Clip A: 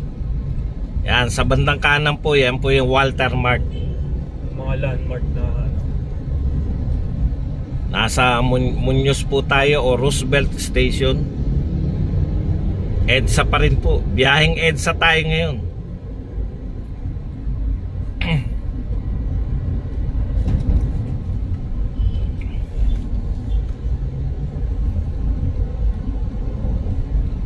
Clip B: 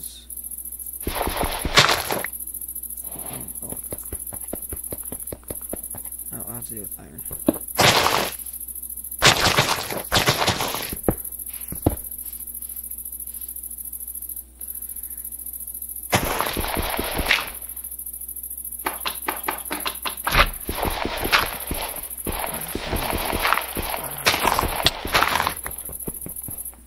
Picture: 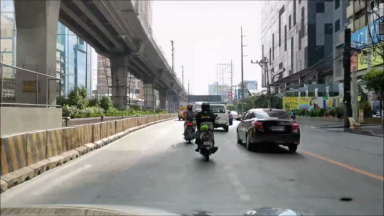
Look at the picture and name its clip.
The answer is A